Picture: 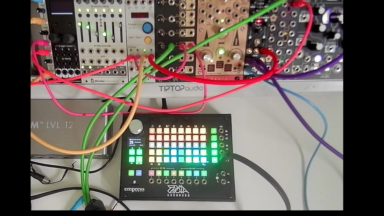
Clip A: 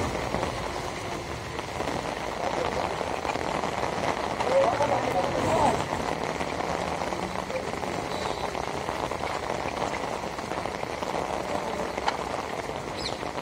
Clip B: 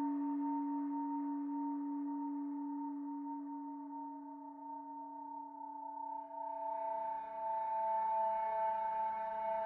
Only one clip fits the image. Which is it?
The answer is B